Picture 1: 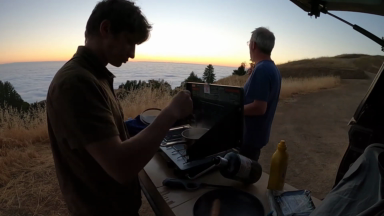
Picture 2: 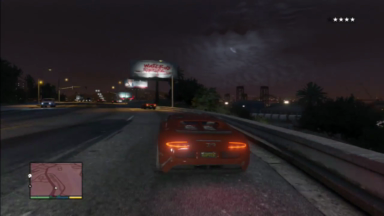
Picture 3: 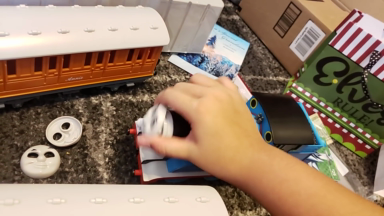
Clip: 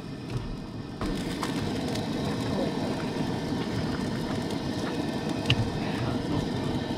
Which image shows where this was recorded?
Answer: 1